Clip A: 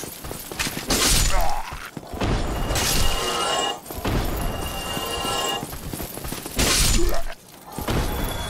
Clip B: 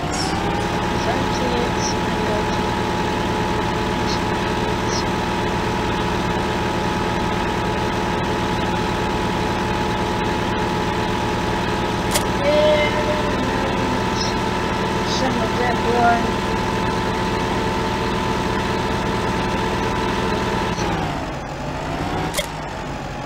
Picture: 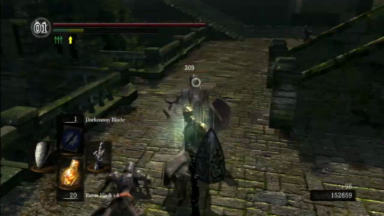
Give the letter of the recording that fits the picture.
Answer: A